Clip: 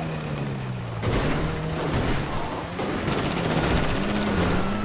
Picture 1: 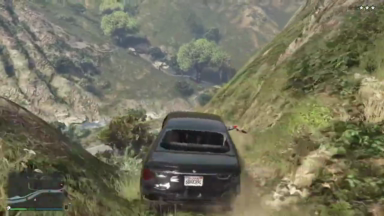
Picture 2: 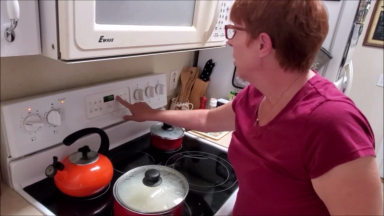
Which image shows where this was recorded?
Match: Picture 1